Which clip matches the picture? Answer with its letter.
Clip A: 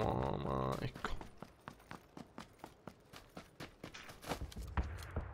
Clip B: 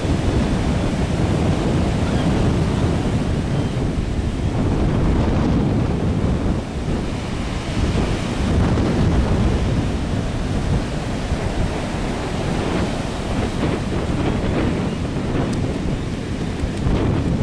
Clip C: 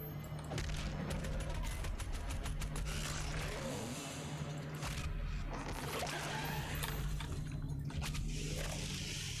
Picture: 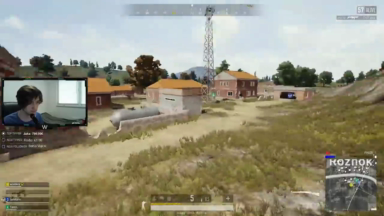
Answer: A